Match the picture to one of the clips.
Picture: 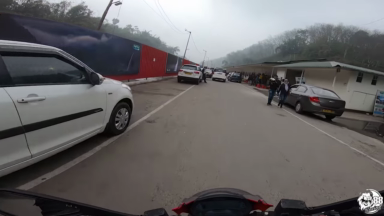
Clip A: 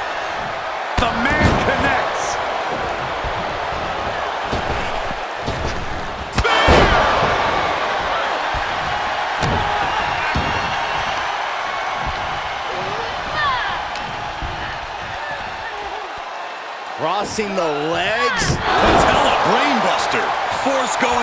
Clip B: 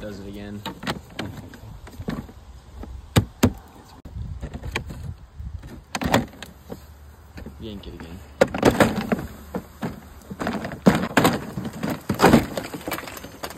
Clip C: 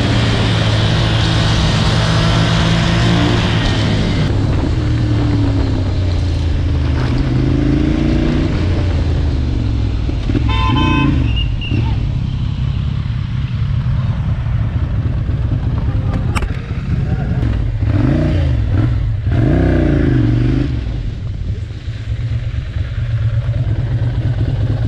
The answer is C